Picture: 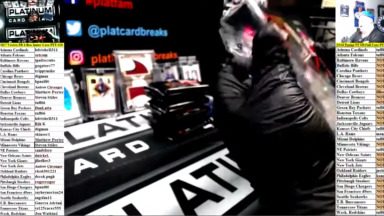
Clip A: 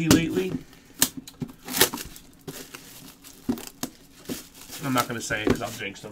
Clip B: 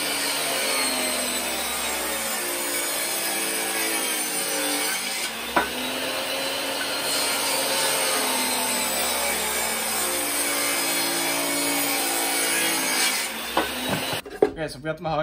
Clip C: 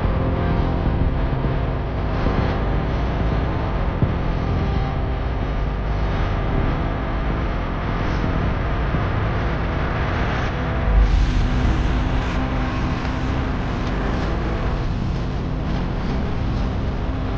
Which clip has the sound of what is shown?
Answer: A